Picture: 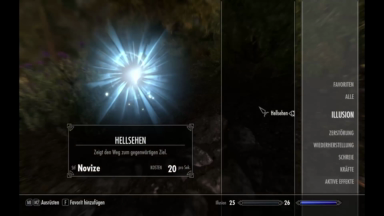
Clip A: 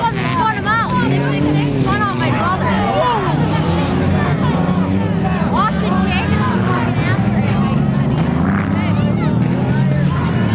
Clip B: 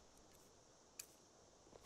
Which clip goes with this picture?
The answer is B